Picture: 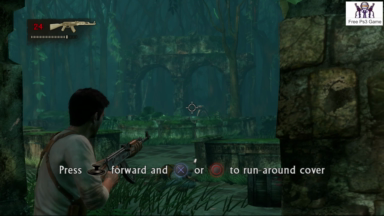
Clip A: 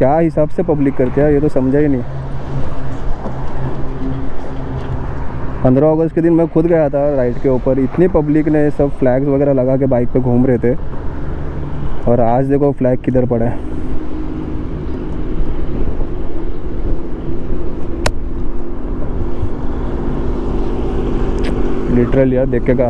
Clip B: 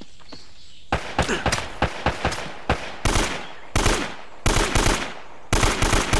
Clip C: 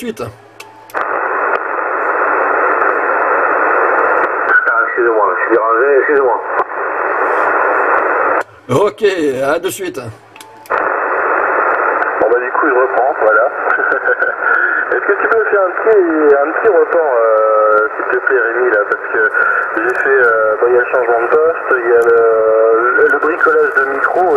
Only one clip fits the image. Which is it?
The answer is B